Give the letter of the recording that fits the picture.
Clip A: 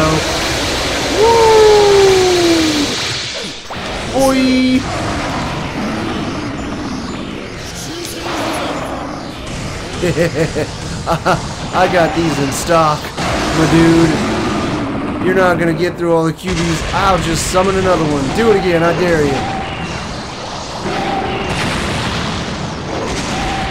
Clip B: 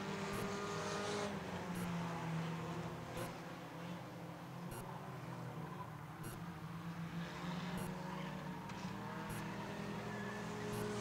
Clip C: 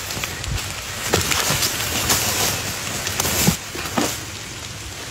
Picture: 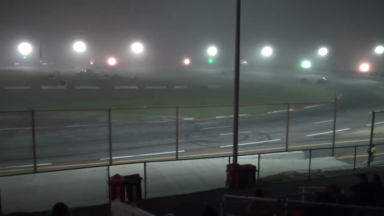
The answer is B